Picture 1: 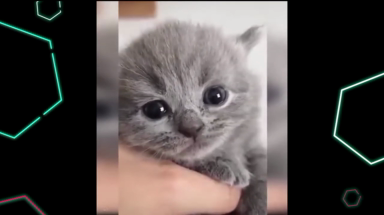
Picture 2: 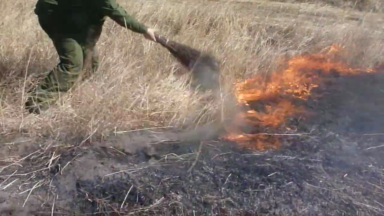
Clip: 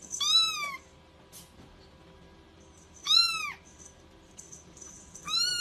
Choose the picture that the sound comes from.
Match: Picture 1